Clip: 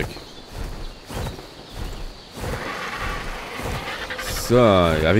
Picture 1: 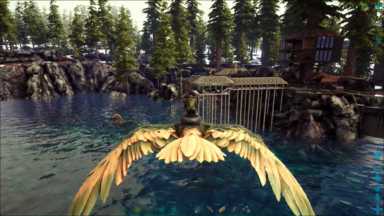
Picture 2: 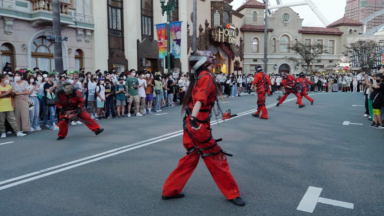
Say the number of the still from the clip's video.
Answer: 1